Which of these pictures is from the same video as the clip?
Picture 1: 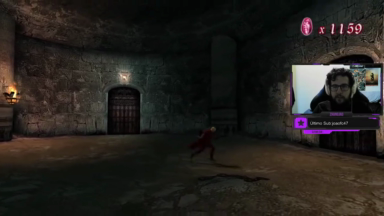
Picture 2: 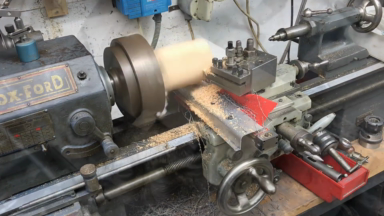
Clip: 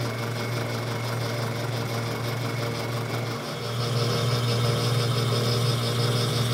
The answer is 2